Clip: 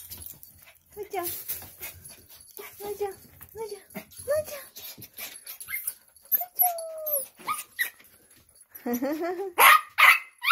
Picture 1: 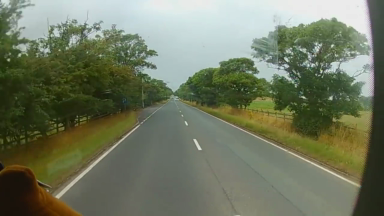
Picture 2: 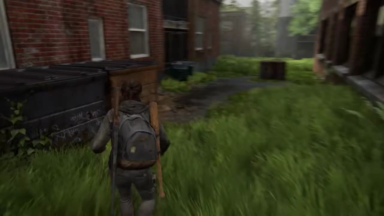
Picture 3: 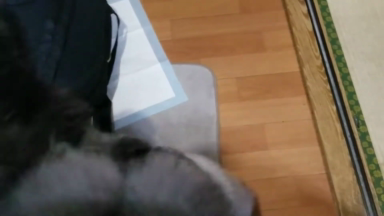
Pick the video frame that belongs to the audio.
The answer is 3